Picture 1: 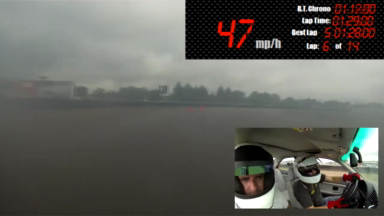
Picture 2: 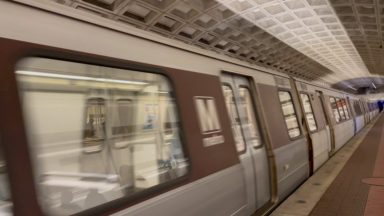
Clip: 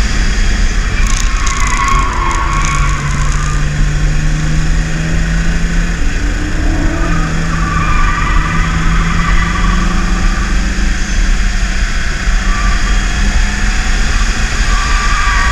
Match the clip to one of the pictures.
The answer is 1